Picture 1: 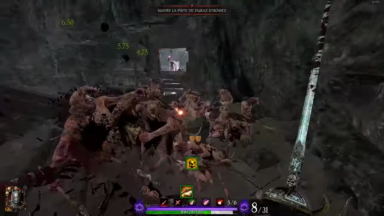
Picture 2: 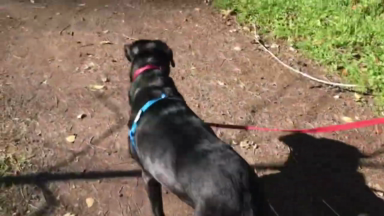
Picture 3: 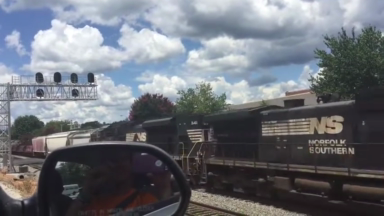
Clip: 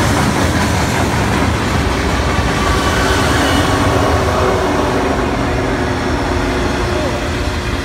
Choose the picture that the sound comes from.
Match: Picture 3